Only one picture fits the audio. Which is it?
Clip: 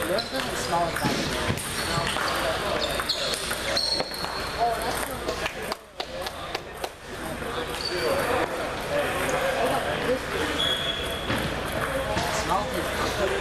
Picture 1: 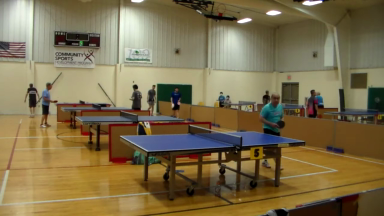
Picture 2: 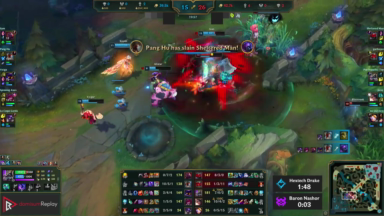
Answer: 1